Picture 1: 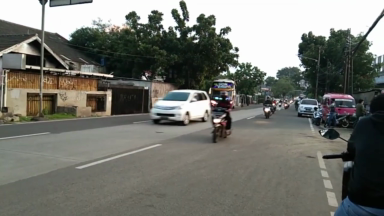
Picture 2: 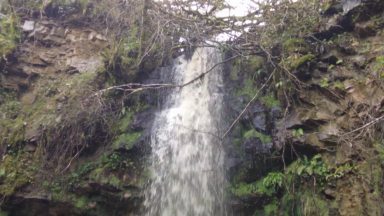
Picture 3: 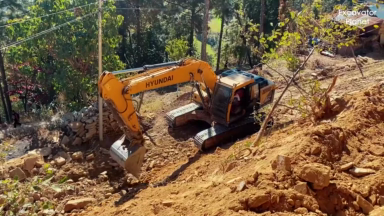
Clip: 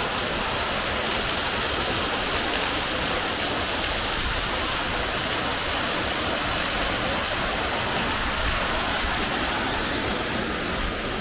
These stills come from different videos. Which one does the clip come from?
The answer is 2